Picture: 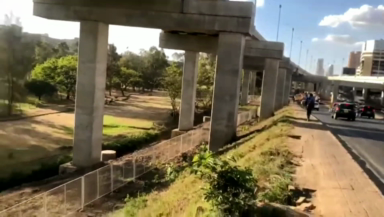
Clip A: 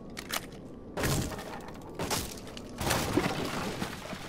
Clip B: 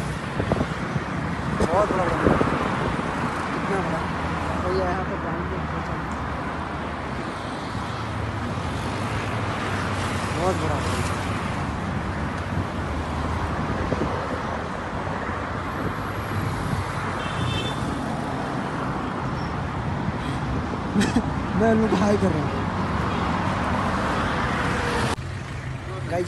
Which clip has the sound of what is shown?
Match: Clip B